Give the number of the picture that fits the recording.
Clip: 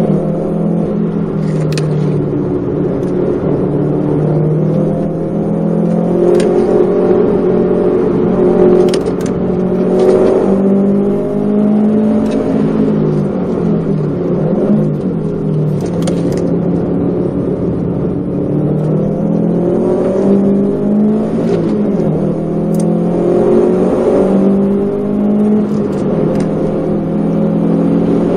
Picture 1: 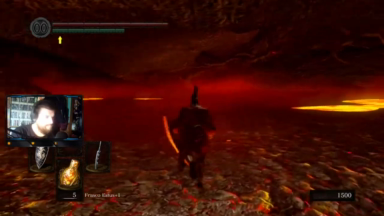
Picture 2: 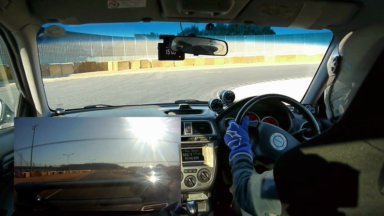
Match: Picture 2